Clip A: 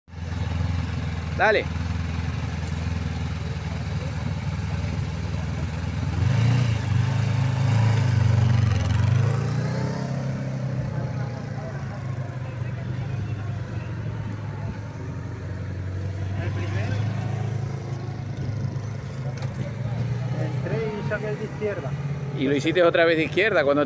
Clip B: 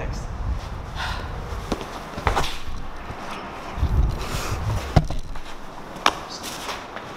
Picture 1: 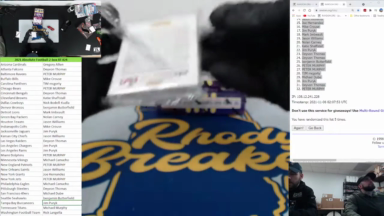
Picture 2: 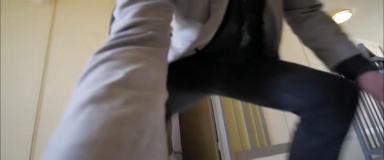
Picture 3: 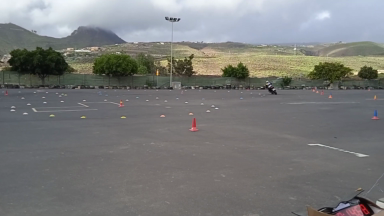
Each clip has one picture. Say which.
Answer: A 3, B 2